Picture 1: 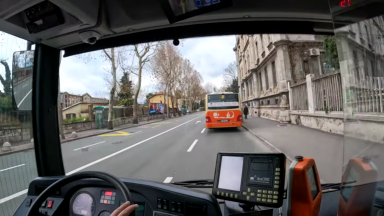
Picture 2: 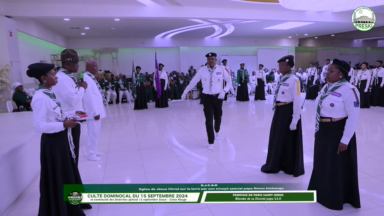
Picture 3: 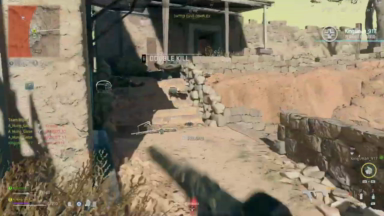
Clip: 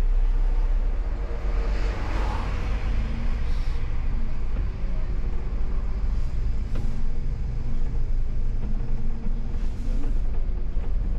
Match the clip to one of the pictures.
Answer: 1